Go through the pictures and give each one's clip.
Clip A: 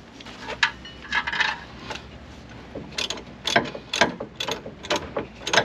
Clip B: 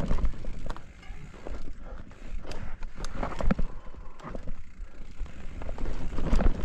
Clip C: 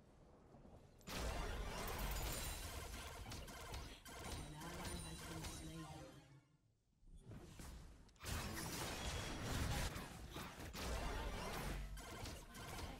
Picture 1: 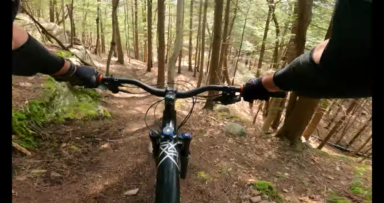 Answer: B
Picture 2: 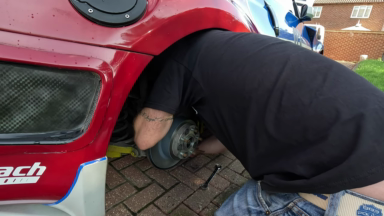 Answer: A